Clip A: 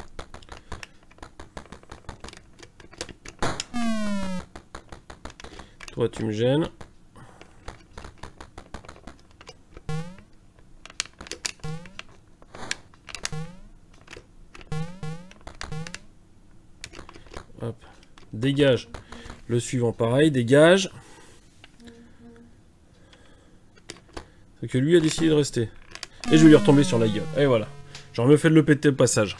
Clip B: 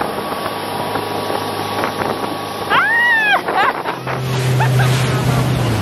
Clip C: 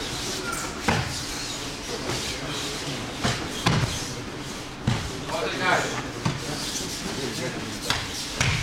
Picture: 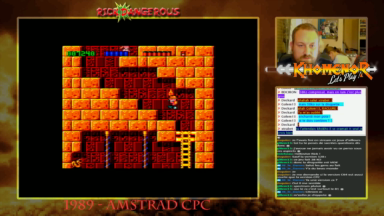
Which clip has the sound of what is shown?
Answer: A